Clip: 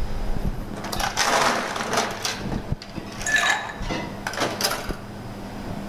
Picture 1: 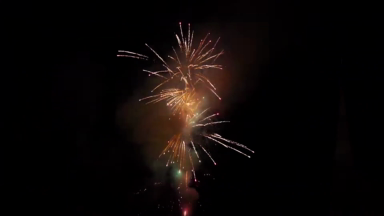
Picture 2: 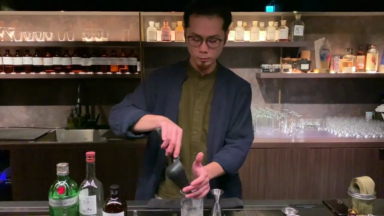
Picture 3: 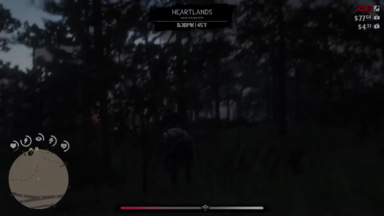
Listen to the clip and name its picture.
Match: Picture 2